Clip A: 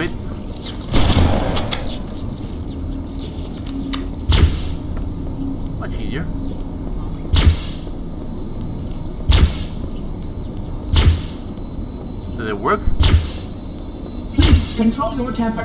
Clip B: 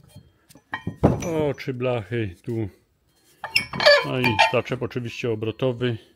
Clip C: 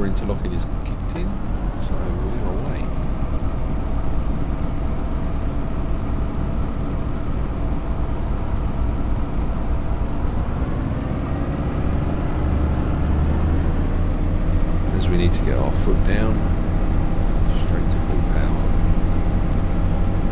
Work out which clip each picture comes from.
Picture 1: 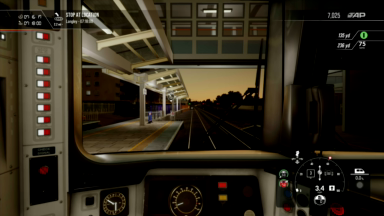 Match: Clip C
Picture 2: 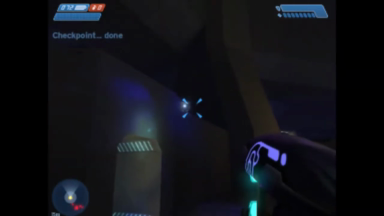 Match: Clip A